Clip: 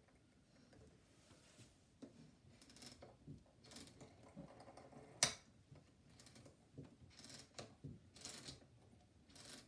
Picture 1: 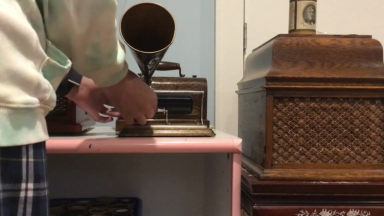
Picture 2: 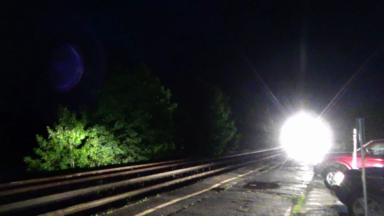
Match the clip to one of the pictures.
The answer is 1